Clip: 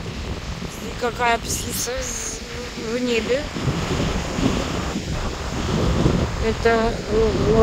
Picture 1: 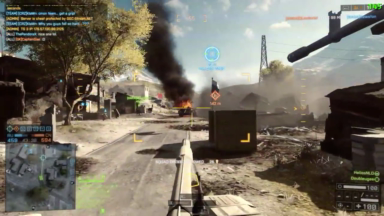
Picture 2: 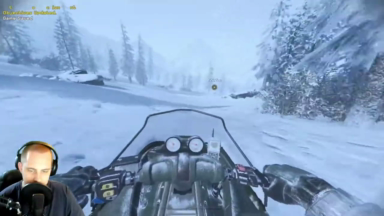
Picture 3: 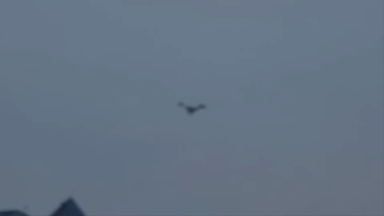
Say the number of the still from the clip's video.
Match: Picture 3